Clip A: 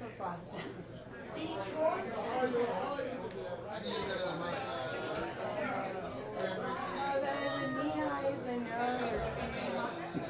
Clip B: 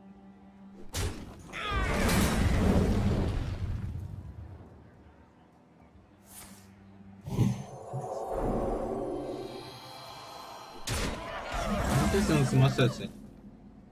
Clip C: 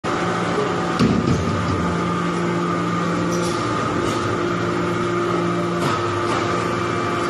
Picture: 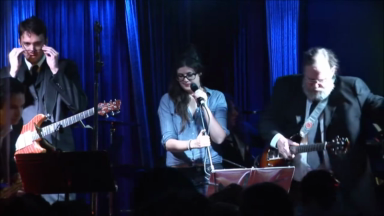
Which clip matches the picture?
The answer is A